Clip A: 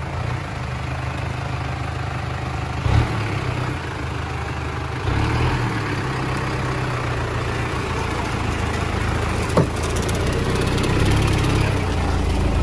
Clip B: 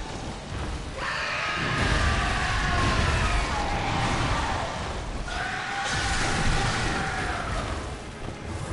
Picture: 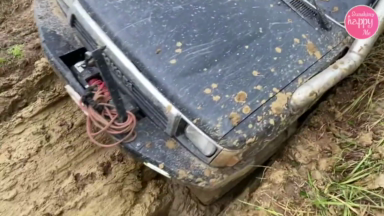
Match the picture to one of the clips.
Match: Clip A